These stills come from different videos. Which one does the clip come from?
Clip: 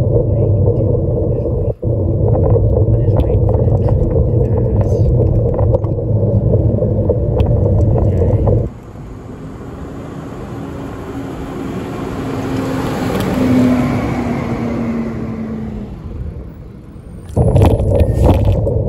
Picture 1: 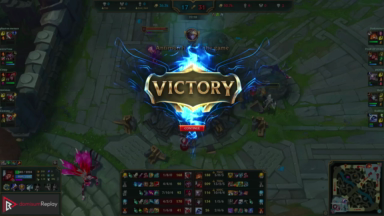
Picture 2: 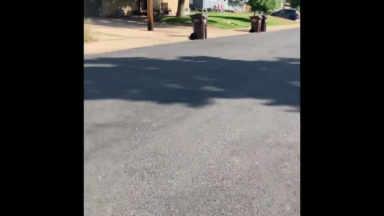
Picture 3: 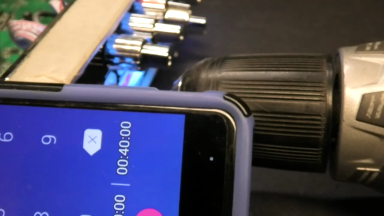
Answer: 2